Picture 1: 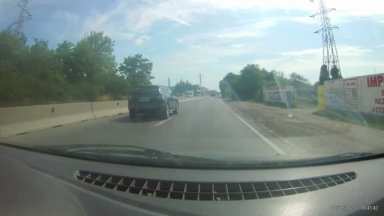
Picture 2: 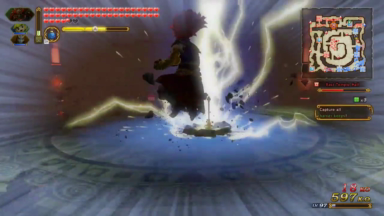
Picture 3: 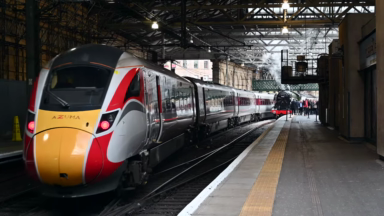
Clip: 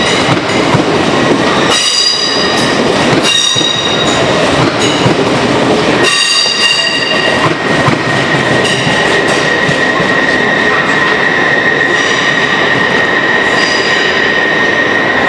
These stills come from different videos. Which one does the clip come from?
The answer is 3